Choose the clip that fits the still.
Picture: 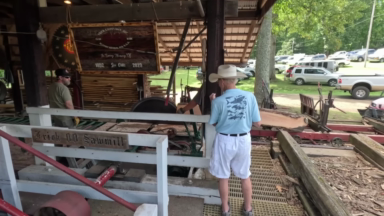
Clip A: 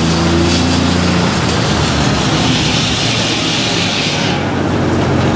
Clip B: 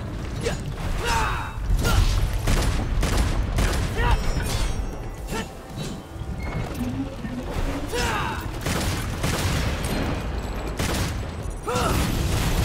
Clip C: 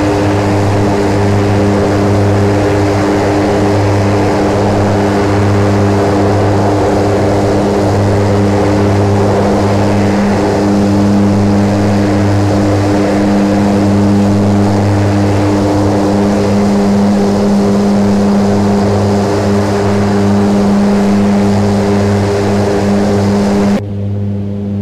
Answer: A